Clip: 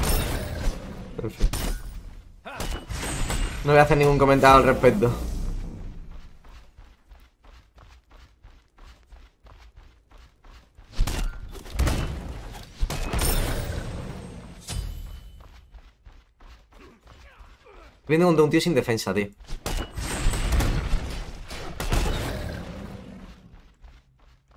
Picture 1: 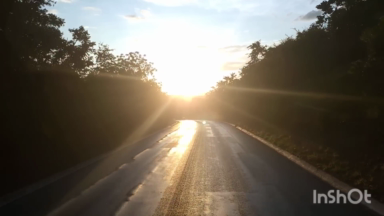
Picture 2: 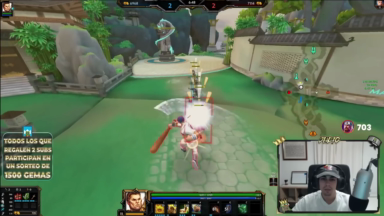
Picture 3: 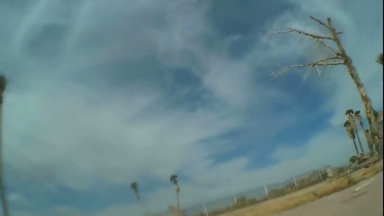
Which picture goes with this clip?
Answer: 2